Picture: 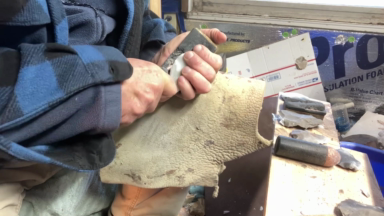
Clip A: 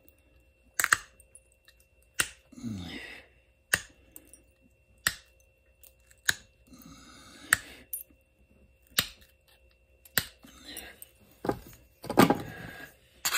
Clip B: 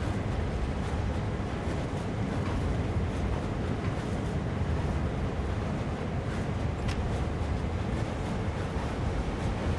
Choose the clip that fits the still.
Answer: A